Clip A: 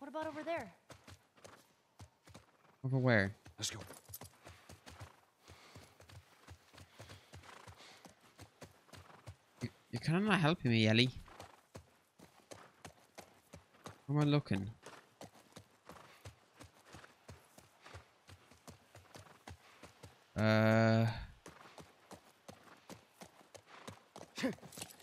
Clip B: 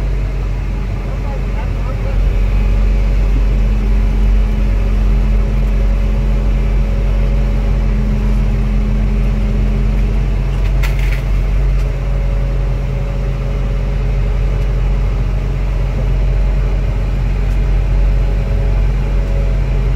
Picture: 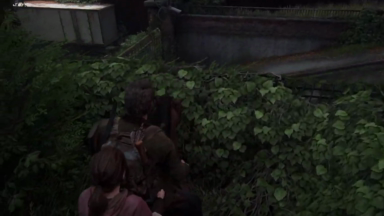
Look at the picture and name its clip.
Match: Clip A